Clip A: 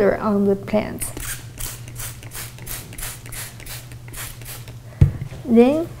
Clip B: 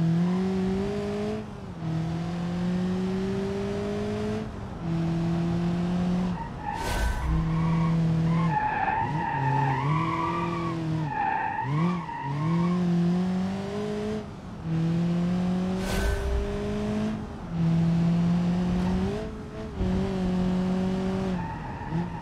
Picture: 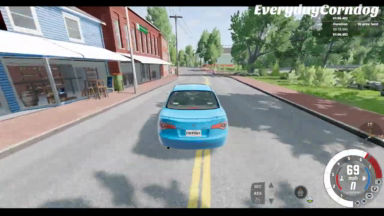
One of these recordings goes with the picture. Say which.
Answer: B